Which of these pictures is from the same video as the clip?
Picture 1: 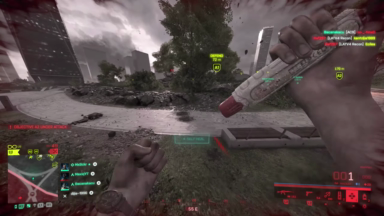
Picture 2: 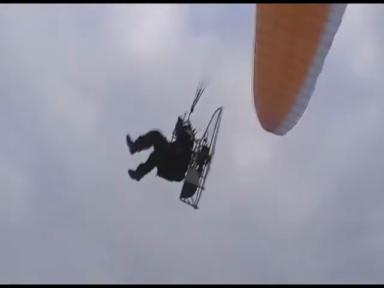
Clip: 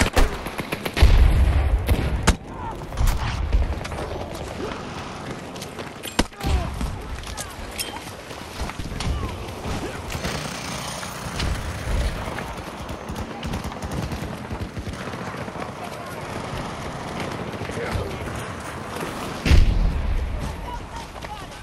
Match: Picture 1